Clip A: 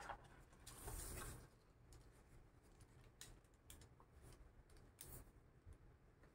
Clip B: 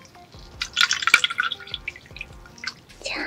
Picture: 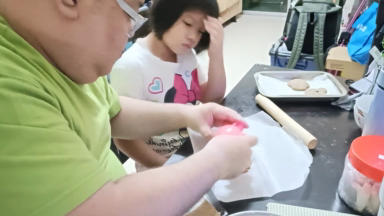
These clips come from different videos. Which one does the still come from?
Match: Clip A